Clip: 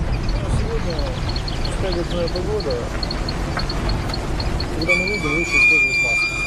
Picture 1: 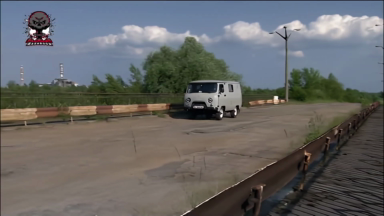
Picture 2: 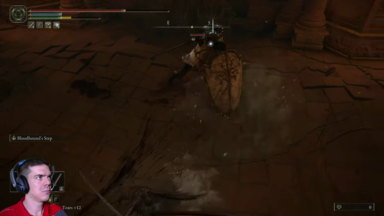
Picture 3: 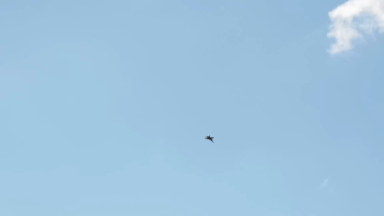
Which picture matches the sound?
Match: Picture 1